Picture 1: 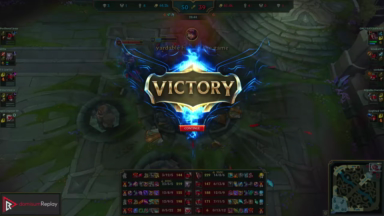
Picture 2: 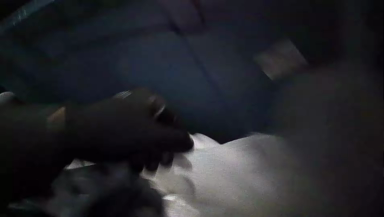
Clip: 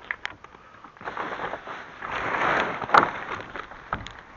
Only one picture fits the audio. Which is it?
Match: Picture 2